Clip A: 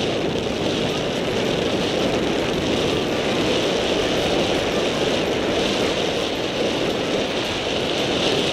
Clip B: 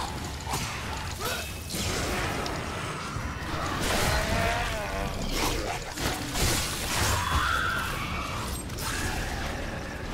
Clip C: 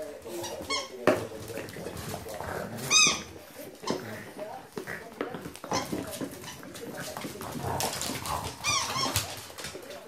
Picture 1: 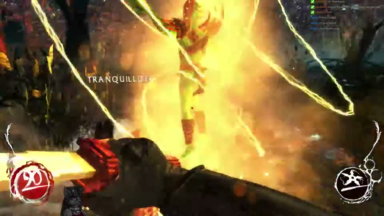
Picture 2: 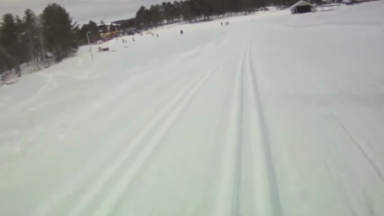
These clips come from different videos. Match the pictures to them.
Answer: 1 B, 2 A